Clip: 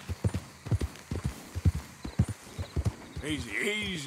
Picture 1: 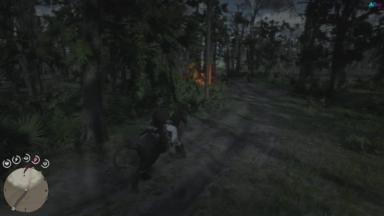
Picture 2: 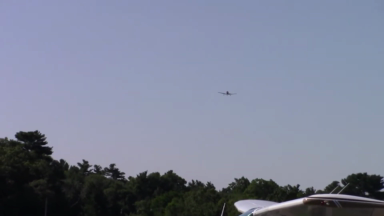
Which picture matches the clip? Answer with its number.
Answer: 1